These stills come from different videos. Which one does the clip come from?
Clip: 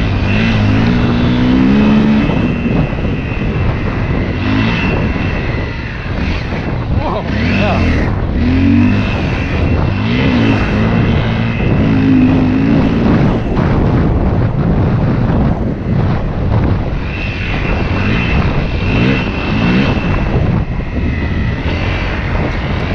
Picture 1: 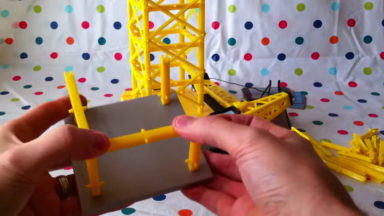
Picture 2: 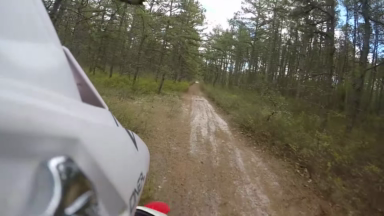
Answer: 2